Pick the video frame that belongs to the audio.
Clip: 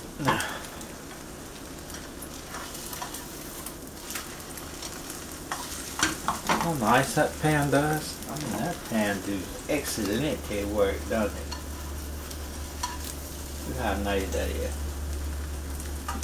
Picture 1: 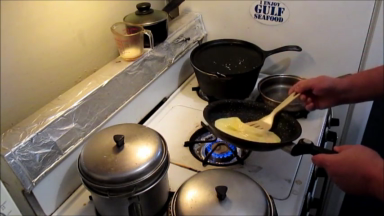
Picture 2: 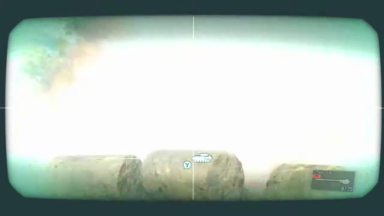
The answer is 1